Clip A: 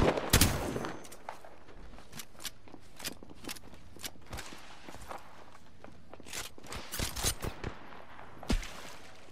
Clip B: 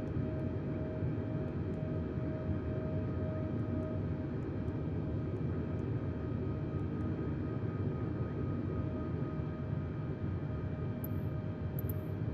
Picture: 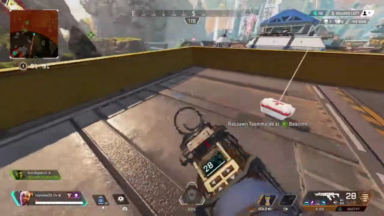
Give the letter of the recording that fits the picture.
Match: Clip A